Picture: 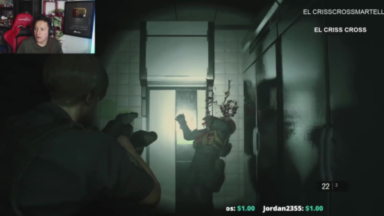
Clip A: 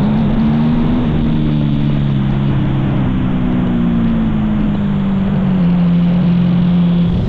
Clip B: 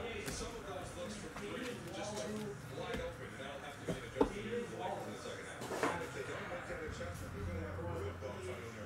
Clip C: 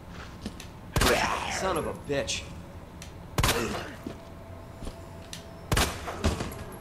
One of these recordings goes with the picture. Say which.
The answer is C